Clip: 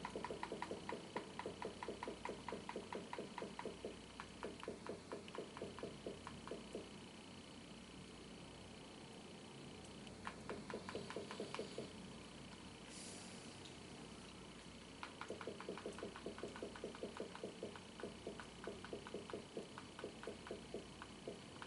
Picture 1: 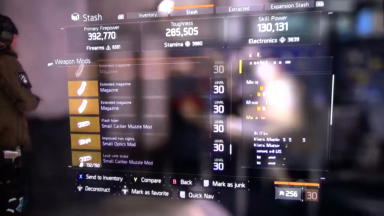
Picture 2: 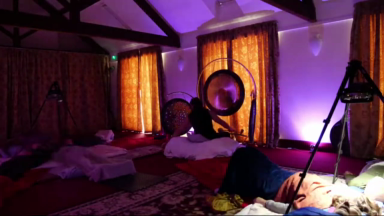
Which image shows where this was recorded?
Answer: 1